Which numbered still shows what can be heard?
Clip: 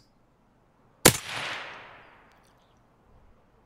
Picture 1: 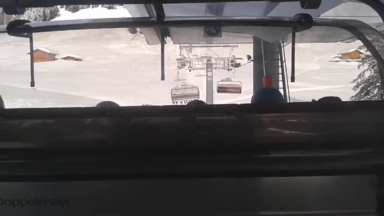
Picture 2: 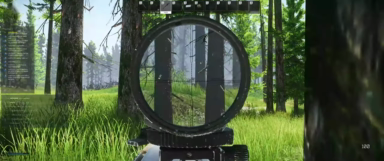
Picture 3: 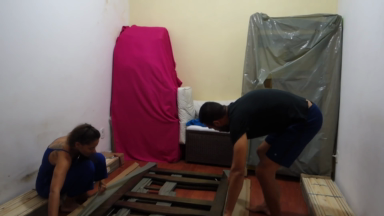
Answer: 2